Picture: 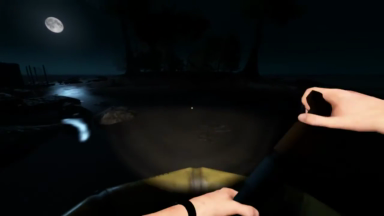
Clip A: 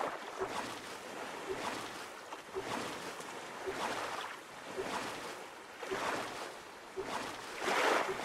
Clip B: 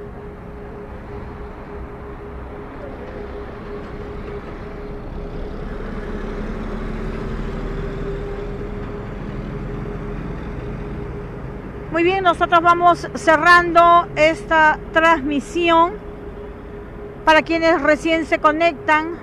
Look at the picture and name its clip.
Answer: A